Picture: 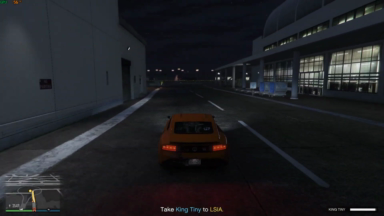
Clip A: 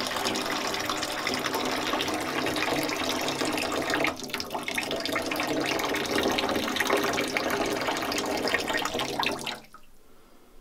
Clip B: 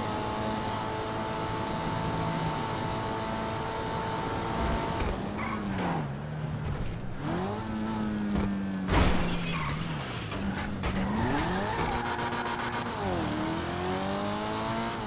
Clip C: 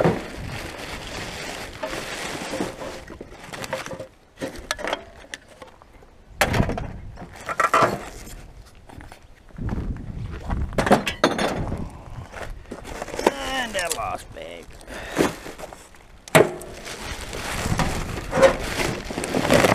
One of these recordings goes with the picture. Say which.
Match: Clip B